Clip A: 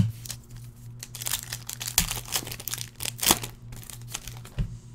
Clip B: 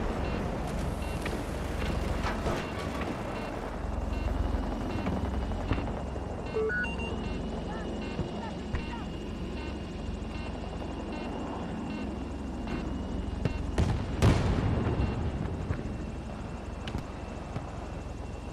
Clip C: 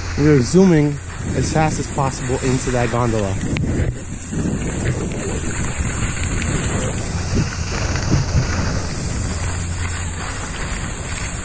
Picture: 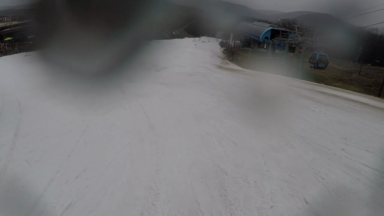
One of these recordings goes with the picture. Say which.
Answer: C